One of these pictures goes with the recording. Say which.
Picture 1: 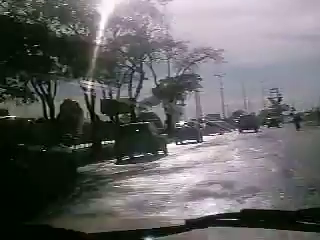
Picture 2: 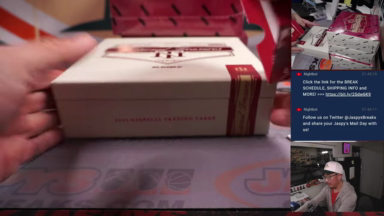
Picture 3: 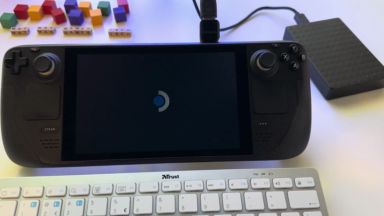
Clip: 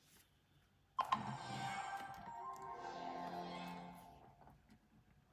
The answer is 3